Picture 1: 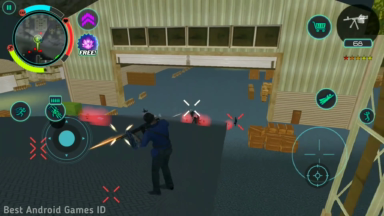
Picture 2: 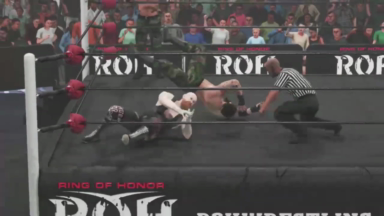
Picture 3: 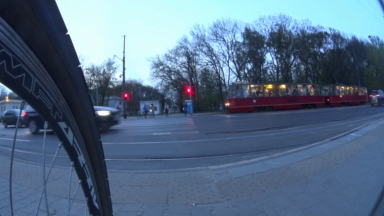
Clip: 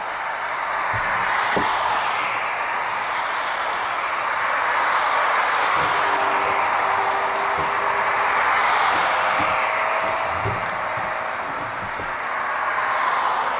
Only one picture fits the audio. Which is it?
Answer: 3